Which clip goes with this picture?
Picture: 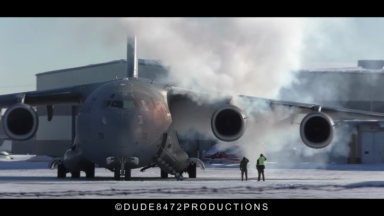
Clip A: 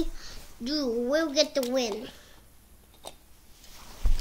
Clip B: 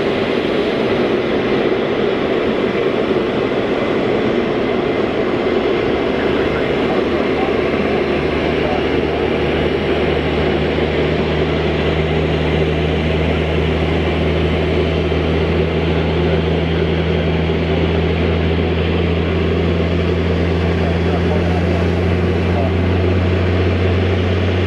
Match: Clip B